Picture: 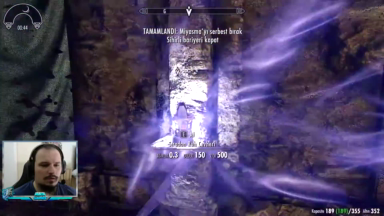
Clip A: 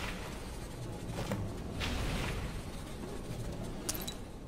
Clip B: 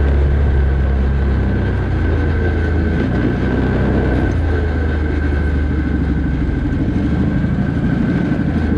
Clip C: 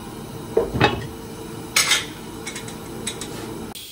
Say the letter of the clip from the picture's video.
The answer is A